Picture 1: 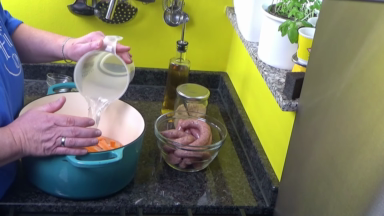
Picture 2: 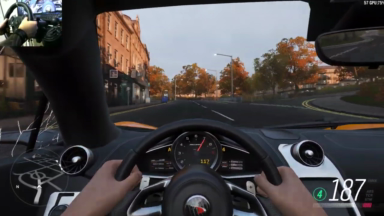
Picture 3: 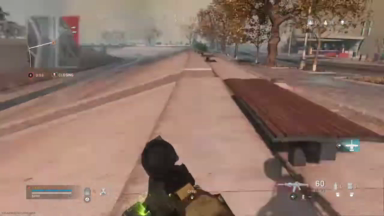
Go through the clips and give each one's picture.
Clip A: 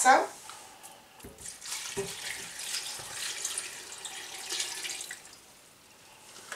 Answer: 1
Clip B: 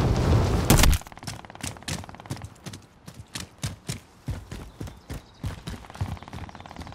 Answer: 3